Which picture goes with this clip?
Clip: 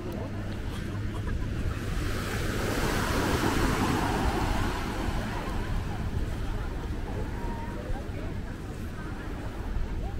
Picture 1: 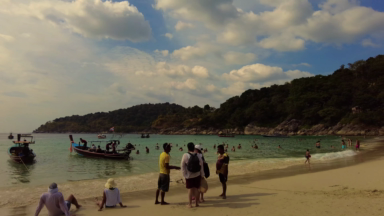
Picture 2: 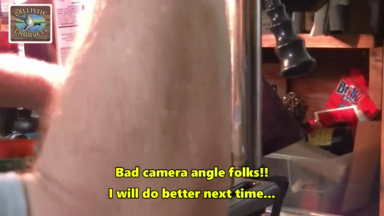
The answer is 1